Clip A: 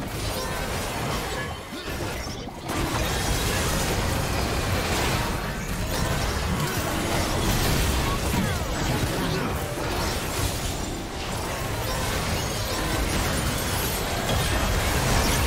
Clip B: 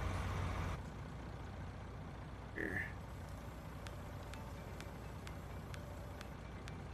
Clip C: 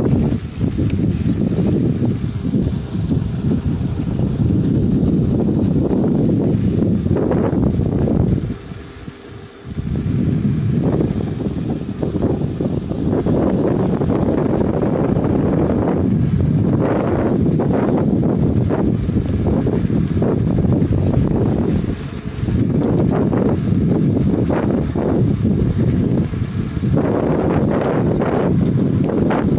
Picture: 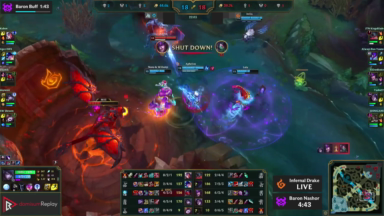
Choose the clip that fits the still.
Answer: A